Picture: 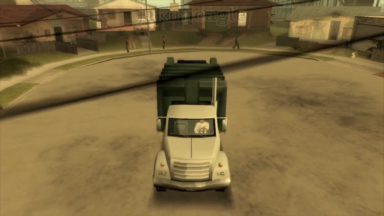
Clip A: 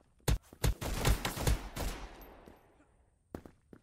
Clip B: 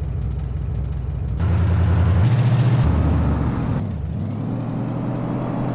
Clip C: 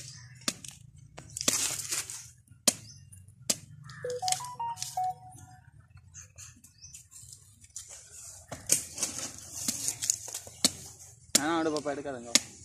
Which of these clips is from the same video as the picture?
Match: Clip B